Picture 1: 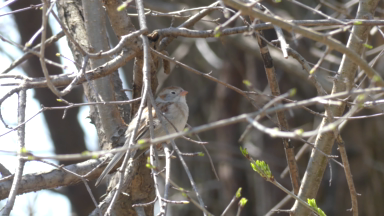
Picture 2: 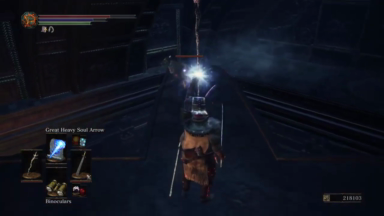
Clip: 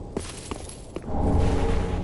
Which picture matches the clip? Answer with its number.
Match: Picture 2